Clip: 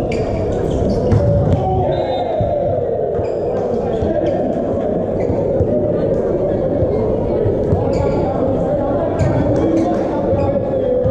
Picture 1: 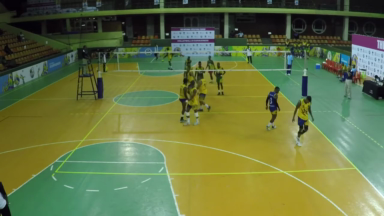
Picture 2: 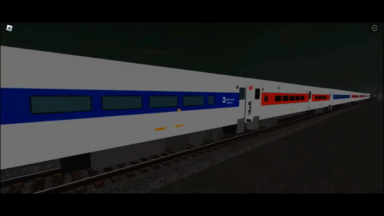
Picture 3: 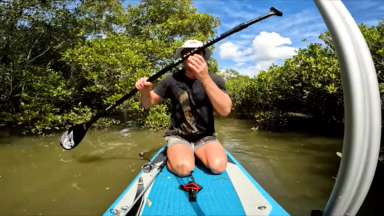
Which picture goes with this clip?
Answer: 1